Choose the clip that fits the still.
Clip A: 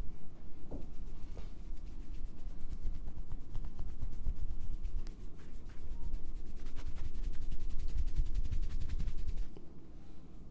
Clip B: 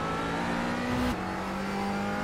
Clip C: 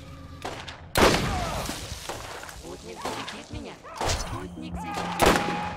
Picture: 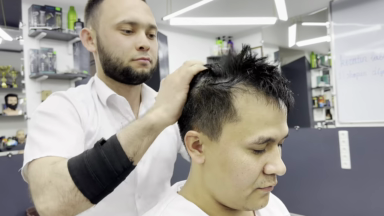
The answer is A